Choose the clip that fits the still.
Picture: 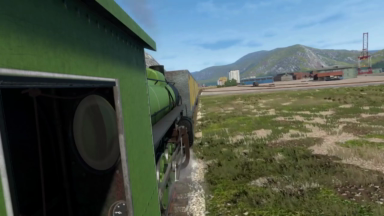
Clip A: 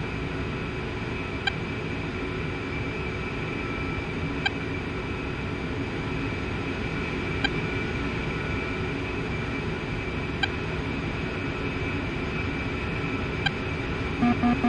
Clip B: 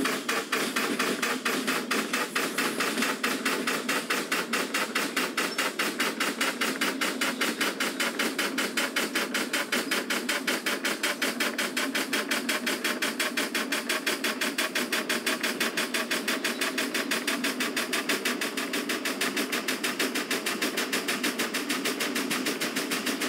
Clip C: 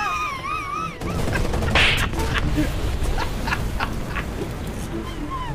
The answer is B